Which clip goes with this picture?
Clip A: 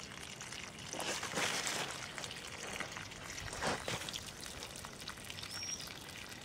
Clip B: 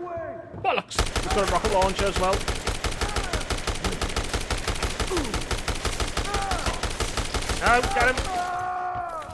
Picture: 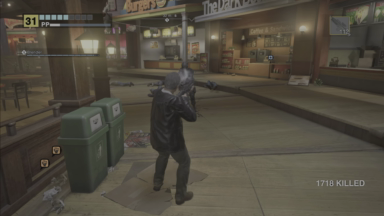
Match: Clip B